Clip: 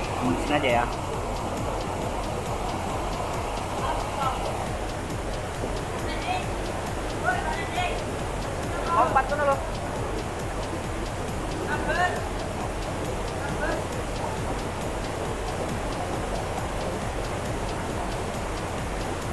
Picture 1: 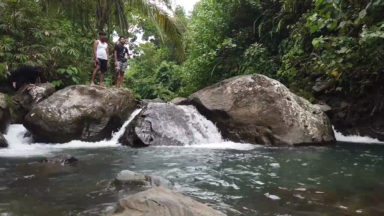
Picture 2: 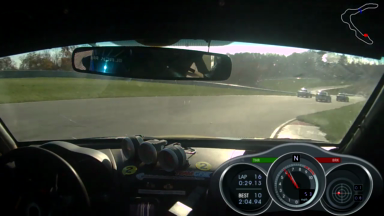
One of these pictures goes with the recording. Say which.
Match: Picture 1